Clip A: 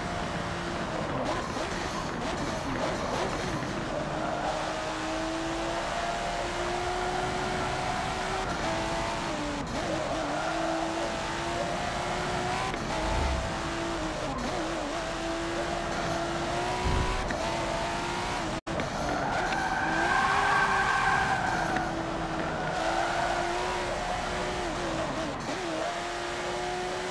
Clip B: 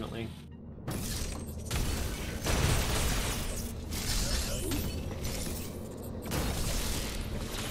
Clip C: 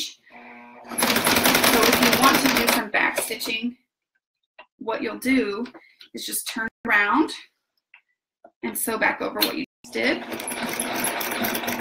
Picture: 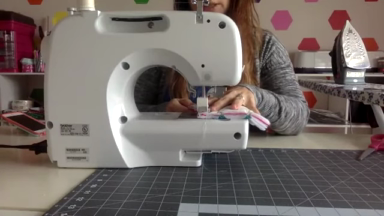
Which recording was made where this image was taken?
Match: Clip C